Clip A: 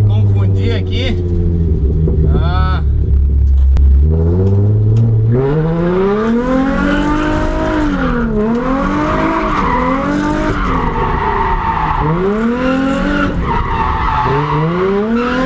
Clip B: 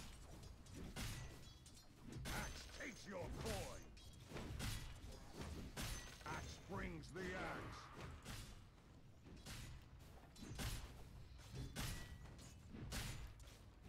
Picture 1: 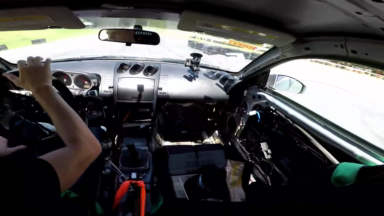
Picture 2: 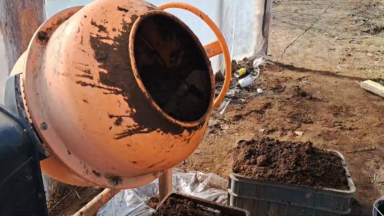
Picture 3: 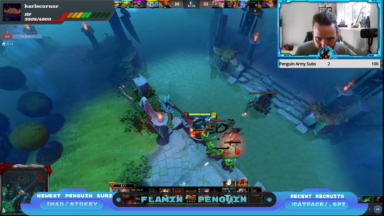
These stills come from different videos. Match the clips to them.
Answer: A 1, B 3